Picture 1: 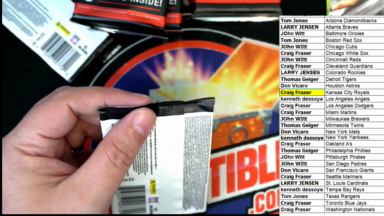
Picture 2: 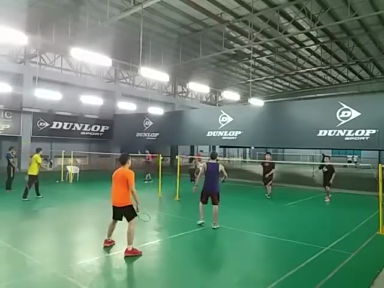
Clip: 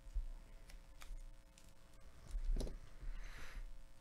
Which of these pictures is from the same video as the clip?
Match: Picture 1